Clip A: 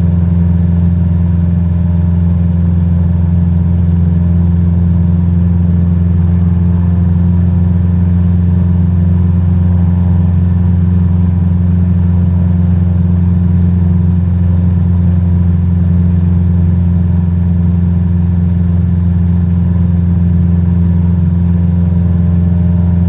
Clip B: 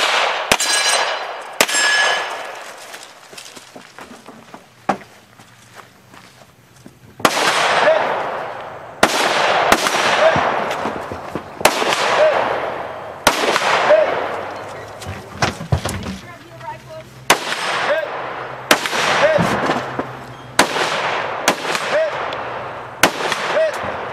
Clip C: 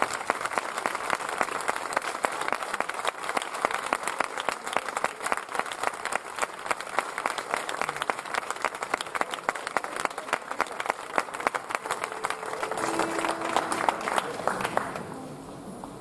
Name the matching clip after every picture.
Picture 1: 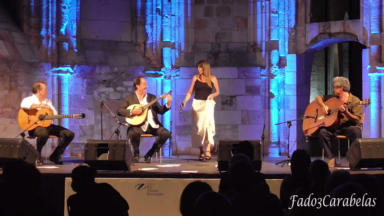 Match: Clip C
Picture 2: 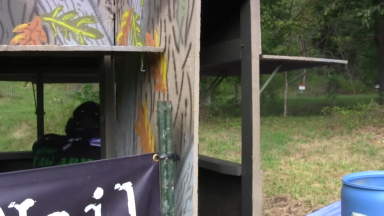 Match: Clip B